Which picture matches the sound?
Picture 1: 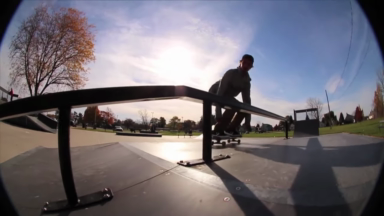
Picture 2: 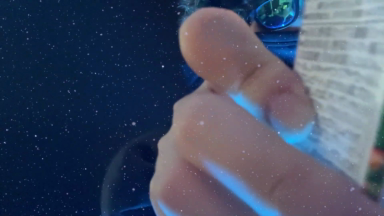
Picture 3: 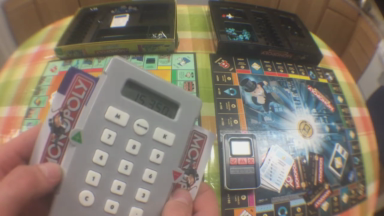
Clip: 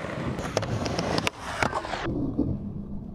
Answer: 1